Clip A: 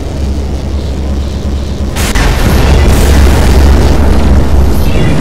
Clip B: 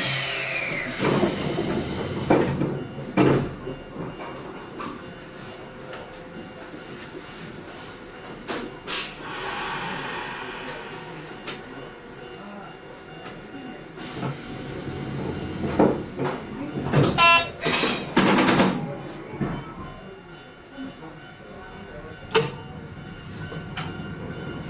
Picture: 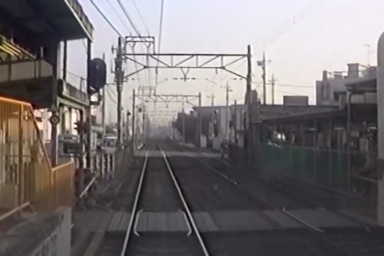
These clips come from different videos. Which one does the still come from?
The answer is B